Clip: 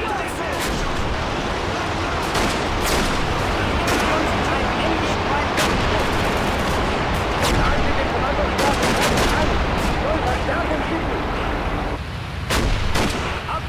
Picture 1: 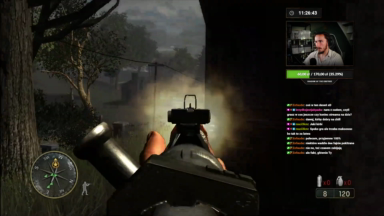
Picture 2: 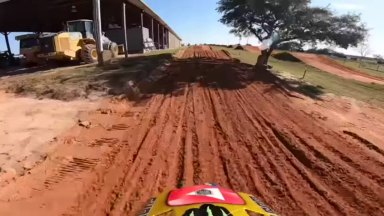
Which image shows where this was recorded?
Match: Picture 1